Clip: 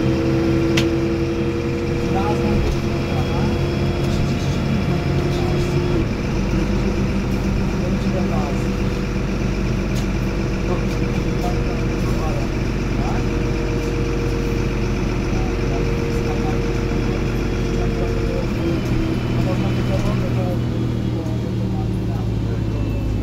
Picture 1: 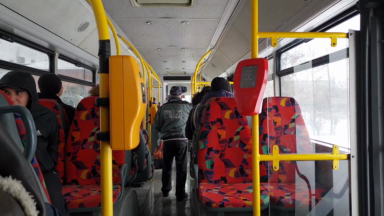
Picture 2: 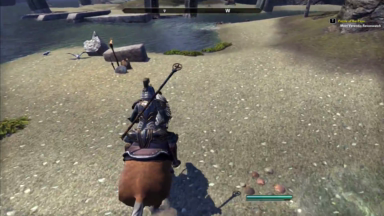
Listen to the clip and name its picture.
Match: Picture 1